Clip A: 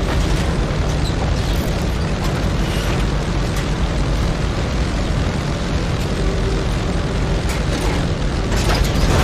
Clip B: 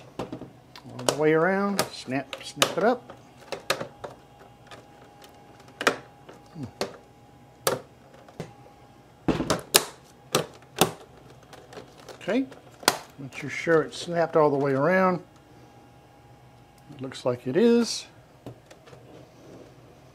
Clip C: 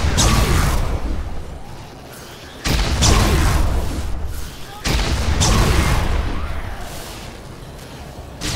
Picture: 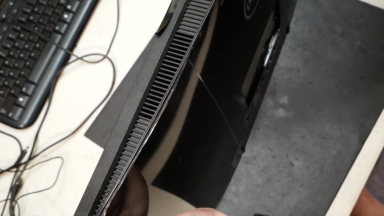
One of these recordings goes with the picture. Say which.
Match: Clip B